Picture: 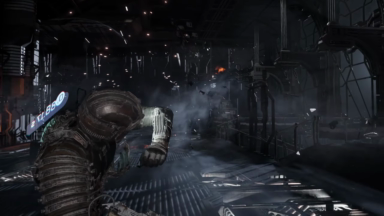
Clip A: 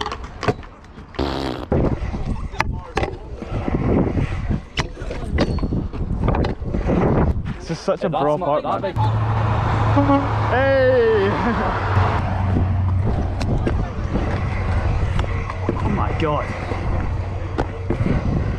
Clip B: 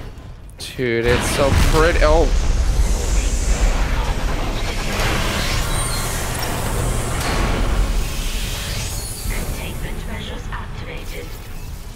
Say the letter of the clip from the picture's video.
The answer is B